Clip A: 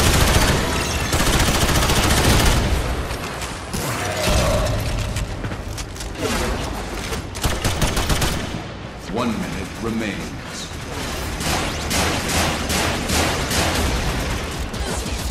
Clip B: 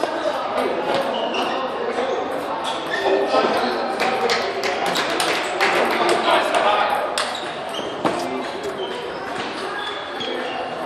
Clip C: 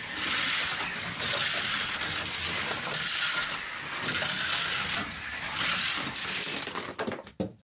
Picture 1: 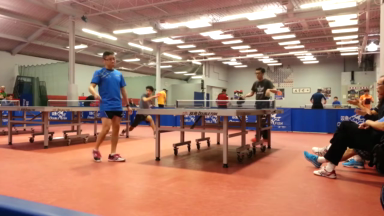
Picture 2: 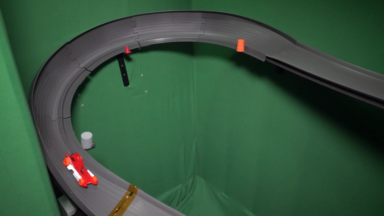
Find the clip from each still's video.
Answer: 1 B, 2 C